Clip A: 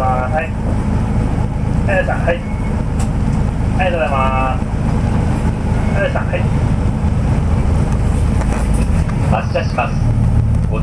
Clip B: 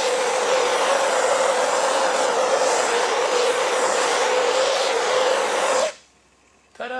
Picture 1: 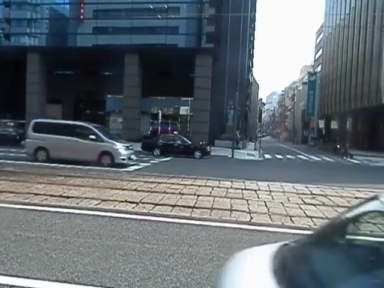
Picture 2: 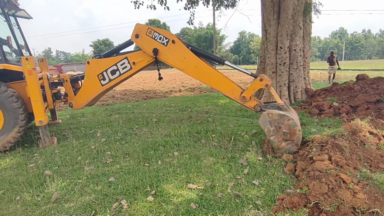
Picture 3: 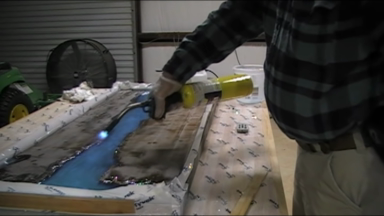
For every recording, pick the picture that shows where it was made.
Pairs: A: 1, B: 3